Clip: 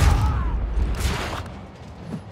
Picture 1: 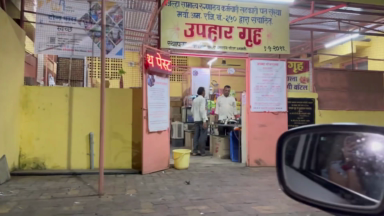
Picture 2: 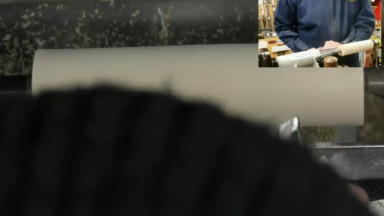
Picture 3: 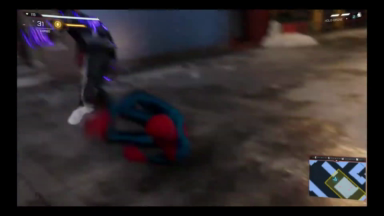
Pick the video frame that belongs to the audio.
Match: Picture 3